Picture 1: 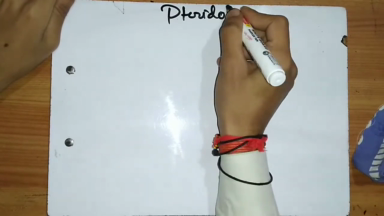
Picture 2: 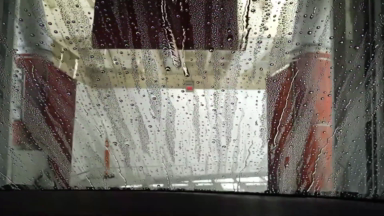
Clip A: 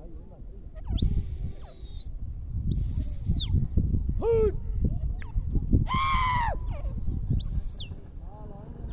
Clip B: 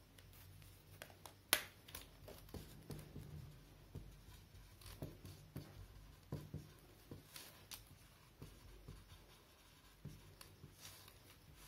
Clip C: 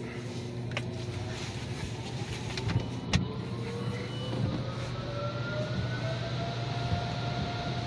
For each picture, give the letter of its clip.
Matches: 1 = B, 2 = C